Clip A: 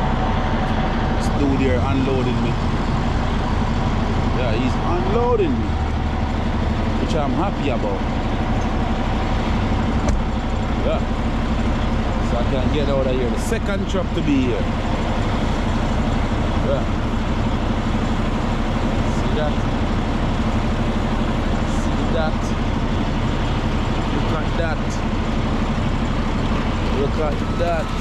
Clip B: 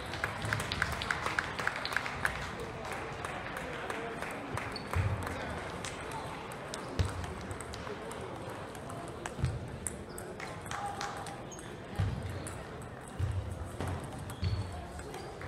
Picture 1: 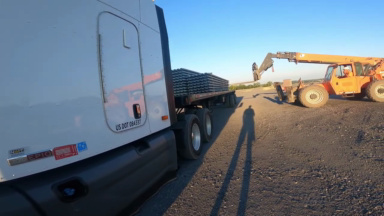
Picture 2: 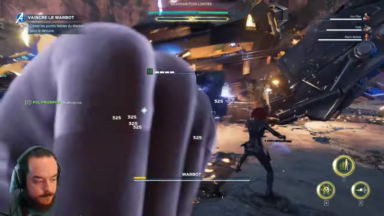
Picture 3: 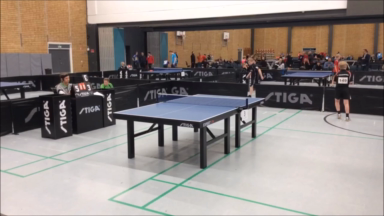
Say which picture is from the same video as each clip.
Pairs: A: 1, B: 3